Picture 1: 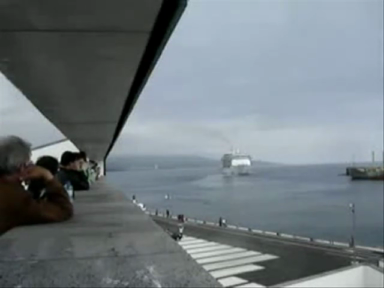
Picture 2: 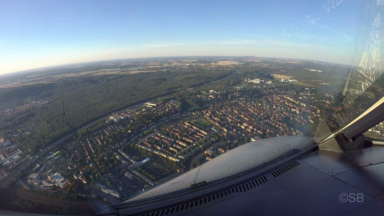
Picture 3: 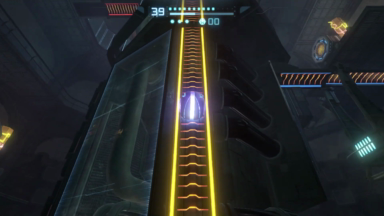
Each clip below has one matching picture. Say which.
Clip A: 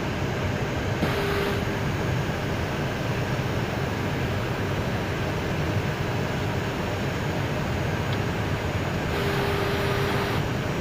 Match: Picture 2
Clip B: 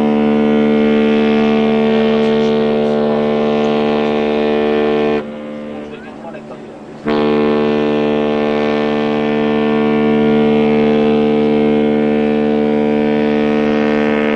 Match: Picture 1